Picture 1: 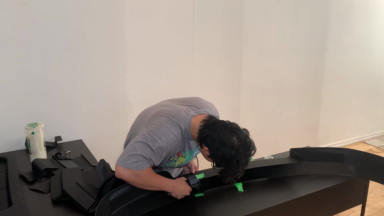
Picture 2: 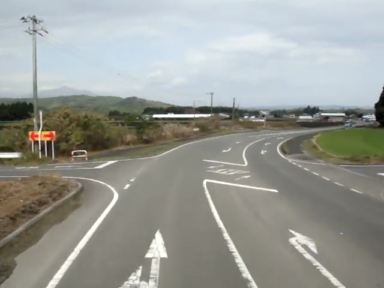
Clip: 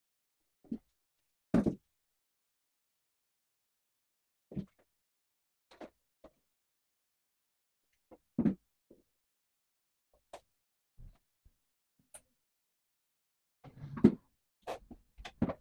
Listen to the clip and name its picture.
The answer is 1